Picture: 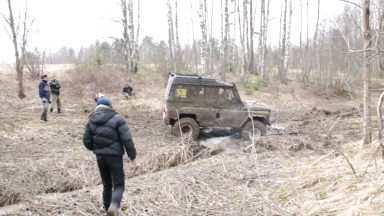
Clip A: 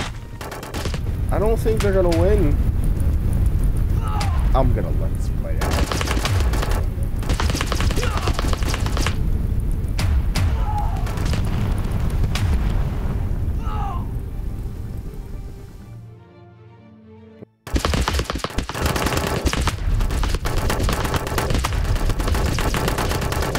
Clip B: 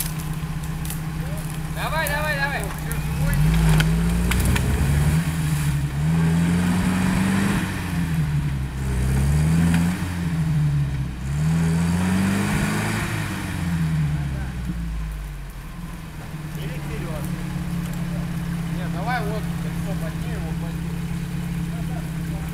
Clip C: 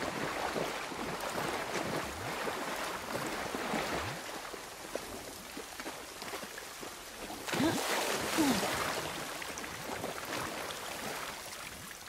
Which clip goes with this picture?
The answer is B